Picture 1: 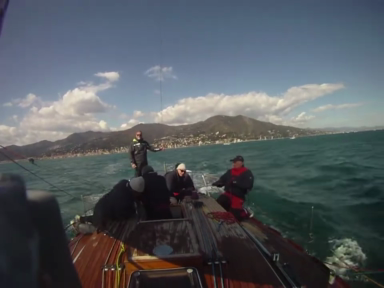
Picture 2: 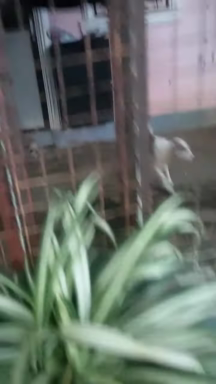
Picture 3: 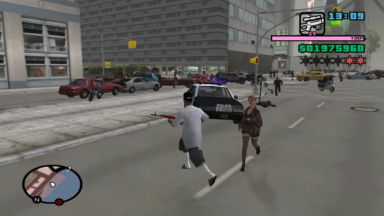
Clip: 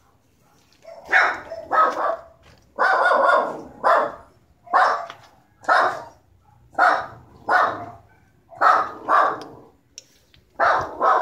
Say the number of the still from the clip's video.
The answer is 2